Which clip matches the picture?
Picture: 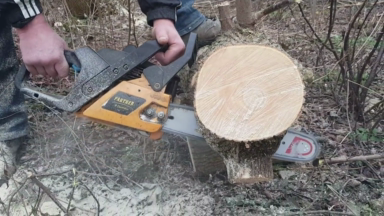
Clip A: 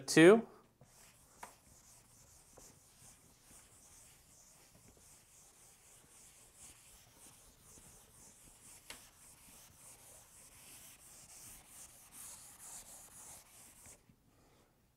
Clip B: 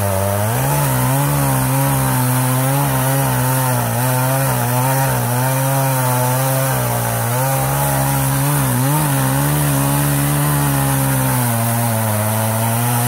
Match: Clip B